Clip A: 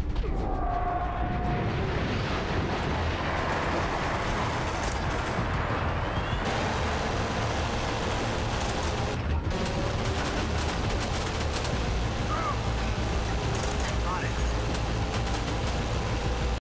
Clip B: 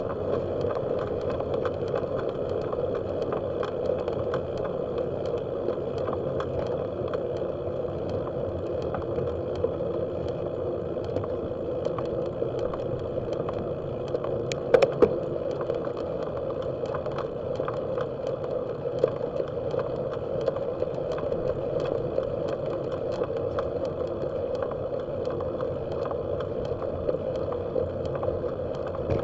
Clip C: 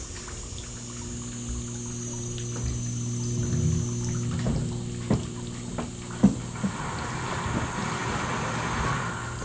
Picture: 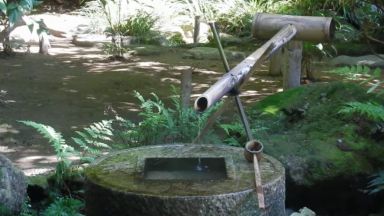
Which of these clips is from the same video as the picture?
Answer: C